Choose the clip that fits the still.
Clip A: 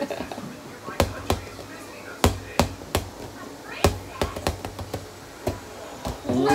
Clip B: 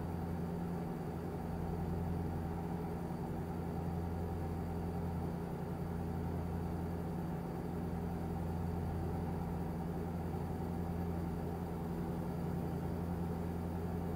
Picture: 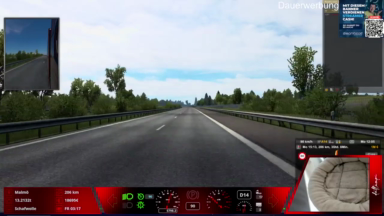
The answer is B